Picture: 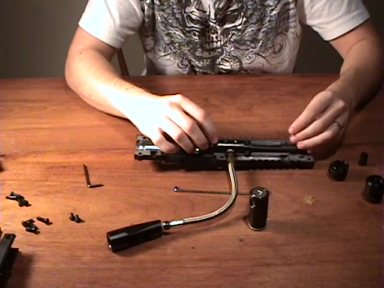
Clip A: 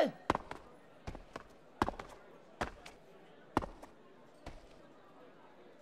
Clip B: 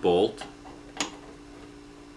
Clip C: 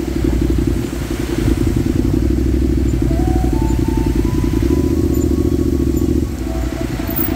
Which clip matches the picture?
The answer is B